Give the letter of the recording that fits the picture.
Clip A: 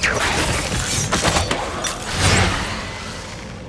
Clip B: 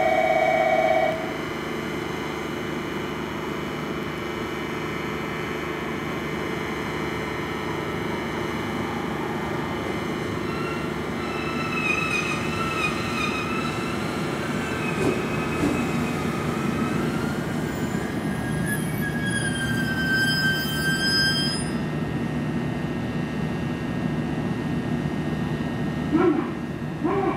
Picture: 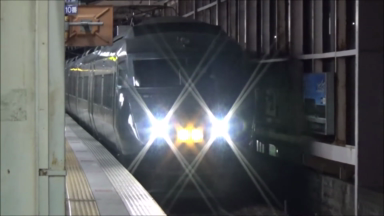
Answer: B